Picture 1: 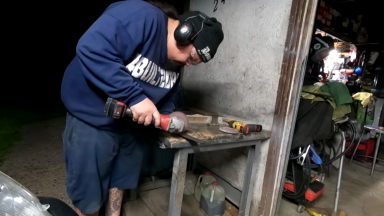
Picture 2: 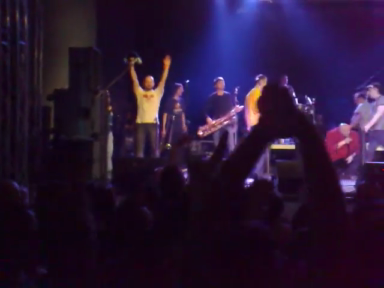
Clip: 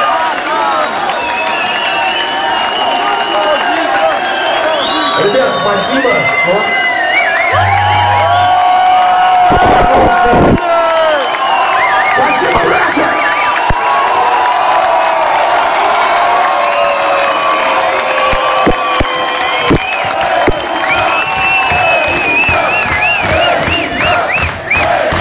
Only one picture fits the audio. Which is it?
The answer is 2